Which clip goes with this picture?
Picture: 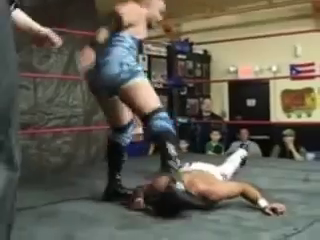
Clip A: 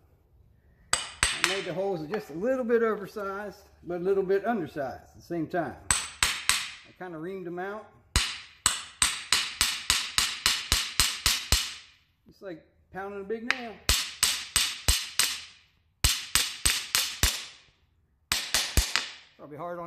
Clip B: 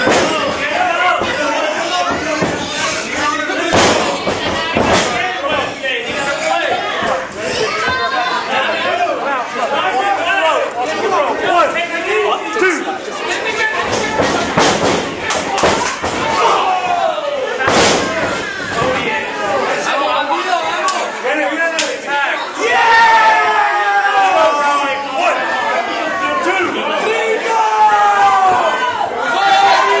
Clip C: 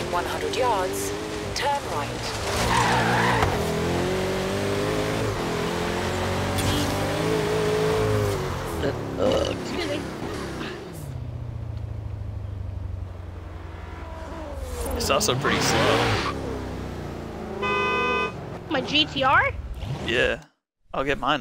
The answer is B